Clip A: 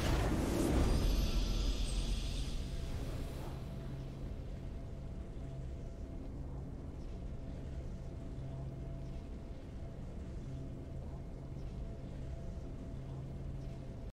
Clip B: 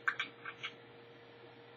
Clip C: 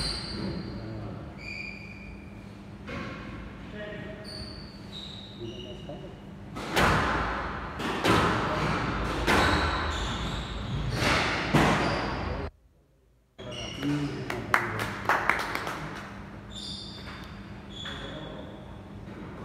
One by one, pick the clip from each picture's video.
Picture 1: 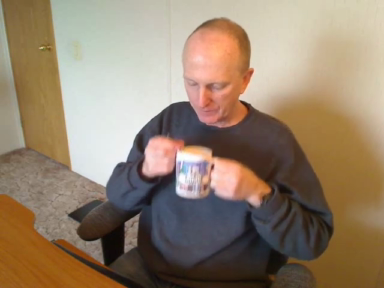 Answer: B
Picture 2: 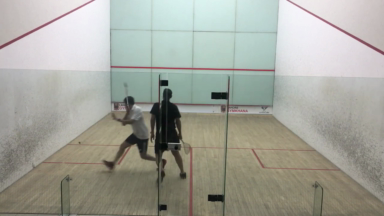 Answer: C